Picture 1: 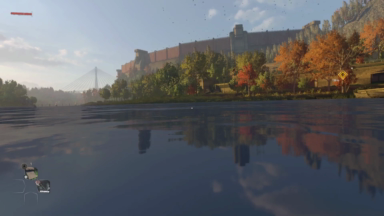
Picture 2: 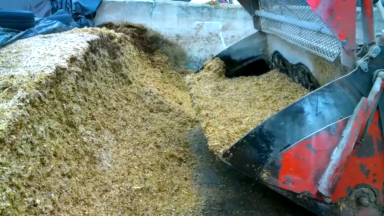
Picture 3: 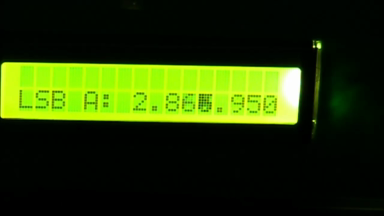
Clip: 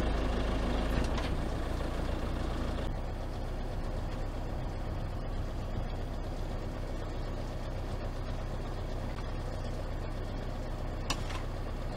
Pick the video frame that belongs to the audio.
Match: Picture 2